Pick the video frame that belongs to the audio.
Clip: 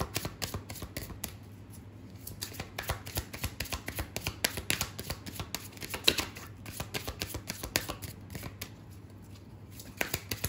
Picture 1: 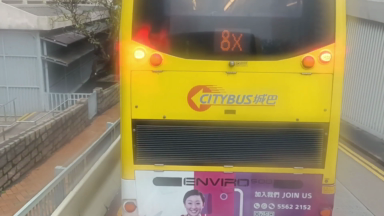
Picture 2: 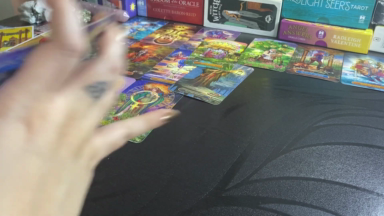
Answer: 2